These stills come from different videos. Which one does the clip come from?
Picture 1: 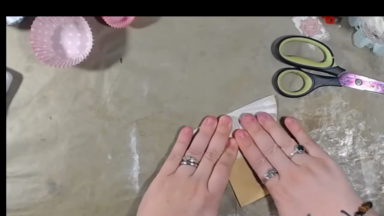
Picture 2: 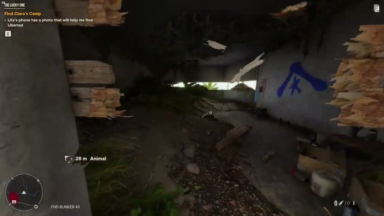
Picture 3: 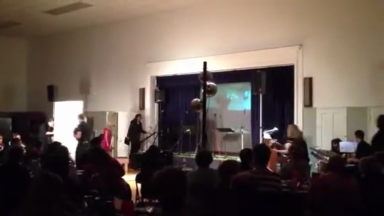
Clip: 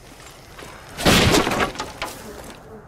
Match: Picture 2